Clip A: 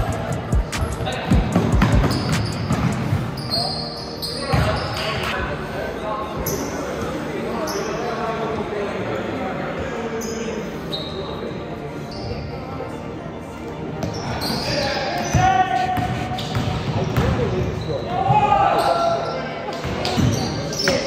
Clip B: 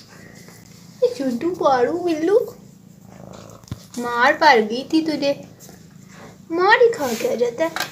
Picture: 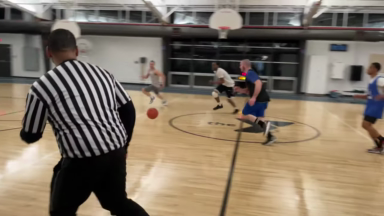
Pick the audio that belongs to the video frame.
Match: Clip A